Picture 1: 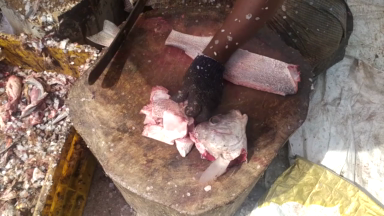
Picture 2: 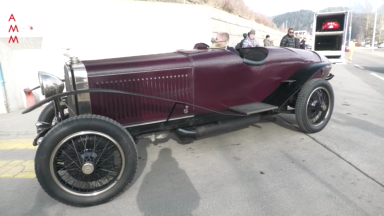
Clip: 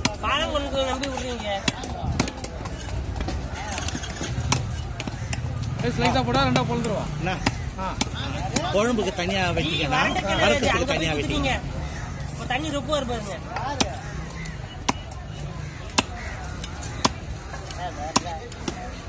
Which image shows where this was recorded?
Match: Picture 1